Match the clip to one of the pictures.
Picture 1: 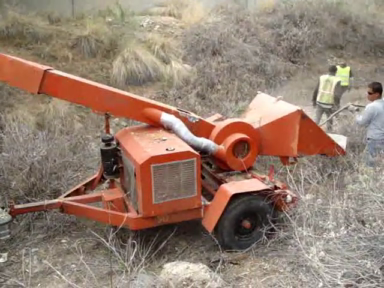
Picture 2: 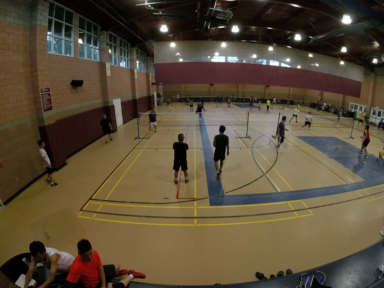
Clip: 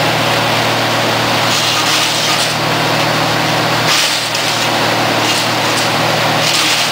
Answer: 1